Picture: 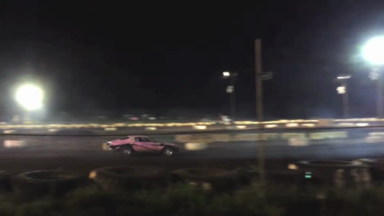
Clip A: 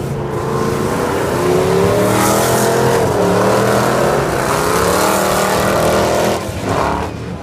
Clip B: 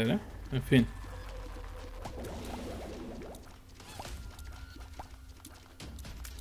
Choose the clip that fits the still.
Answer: A